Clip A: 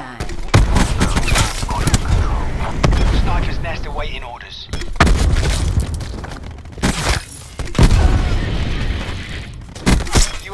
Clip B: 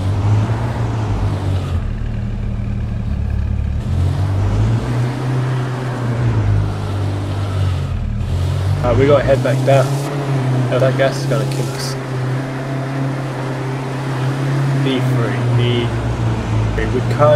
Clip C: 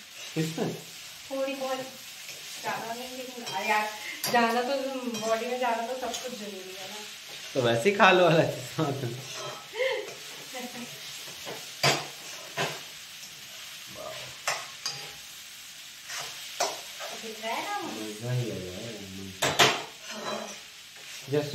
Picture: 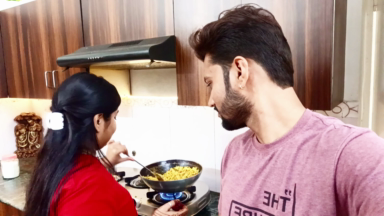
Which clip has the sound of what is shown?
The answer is C